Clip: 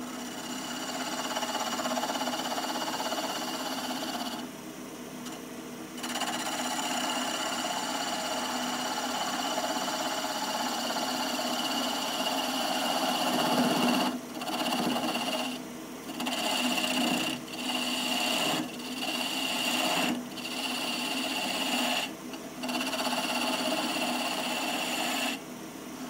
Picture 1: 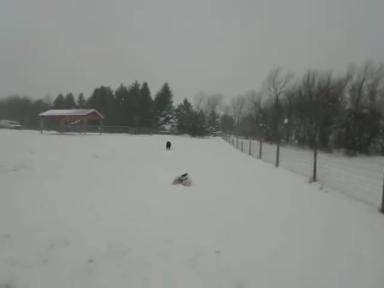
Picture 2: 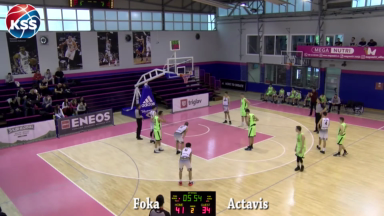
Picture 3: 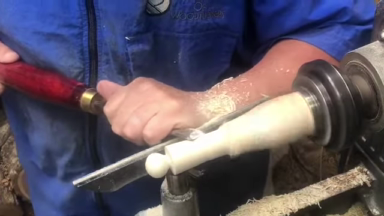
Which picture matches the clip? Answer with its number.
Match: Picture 3